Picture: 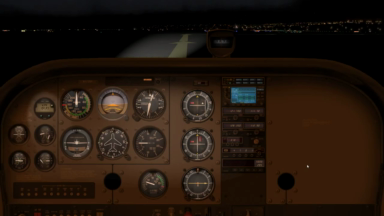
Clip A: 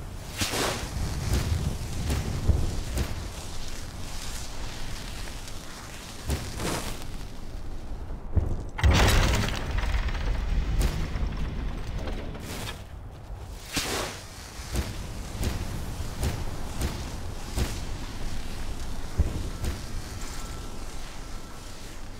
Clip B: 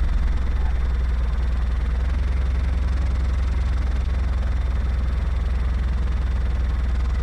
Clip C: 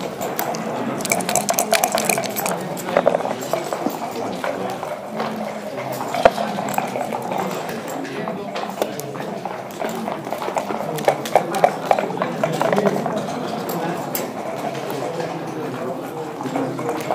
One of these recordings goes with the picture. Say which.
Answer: B